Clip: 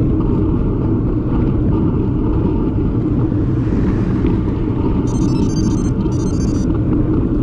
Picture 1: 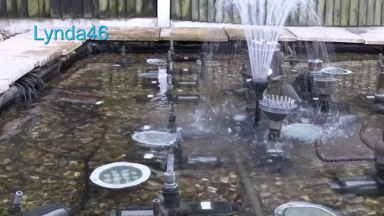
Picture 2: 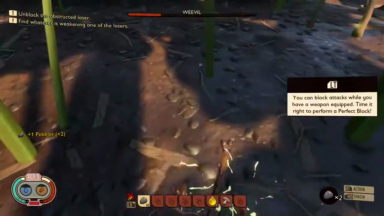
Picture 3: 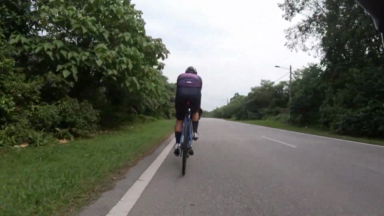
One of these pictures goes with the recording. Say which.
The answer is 3